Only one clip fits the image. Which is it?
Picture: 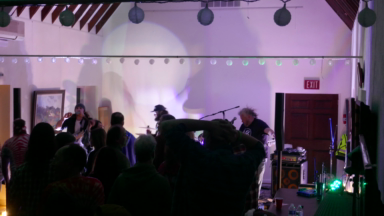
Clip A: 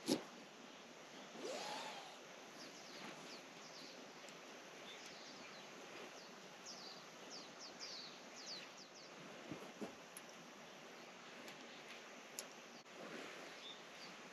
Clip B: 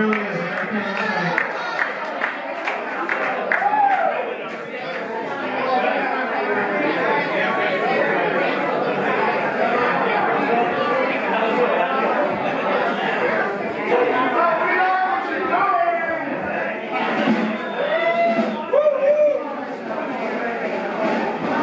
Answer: B